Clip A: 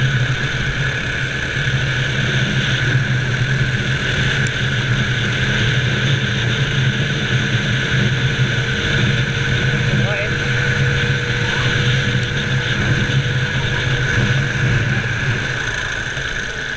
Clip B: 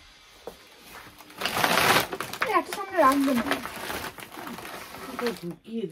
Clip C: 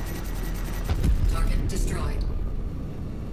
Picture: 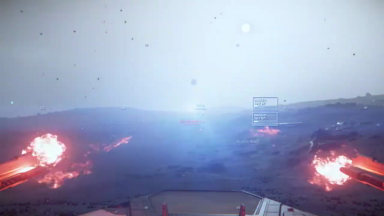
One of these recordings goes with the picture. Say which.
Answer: C